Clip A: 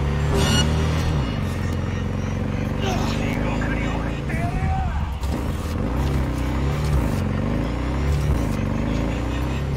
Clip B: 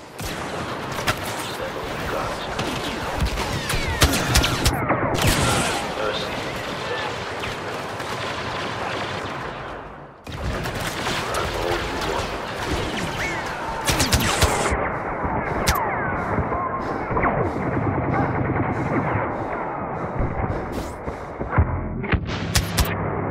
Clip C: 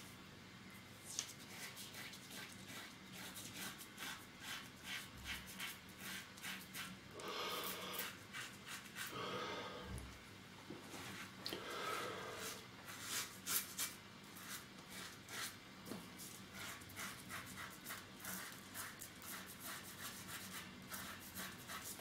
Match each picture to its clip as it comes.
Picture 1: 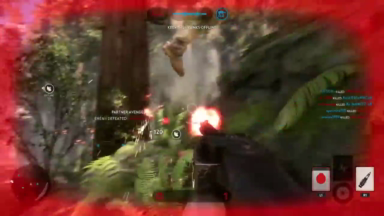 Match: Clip B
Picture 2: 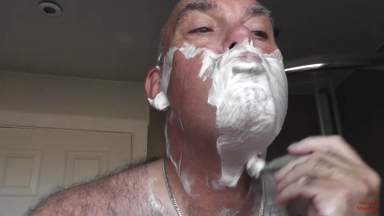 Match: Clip C